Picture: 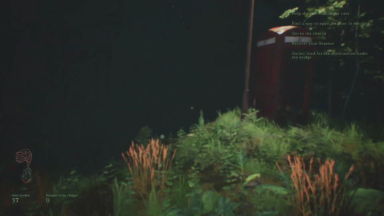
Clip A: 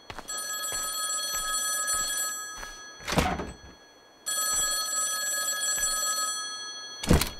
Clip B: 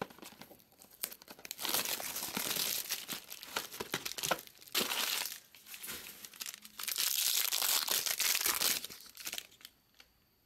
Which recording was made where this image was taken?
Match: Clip A